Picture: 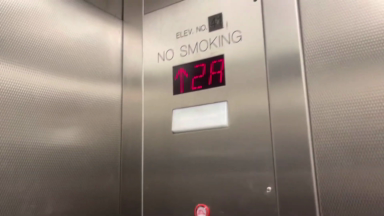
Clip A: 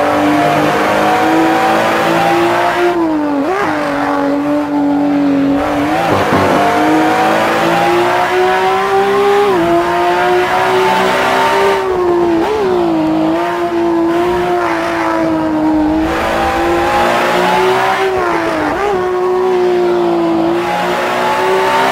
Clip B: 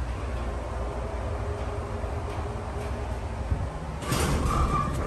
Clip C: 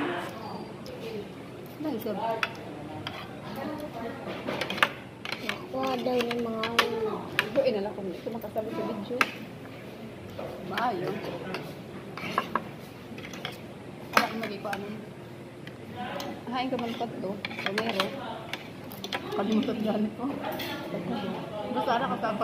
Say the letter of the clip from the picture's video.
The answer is B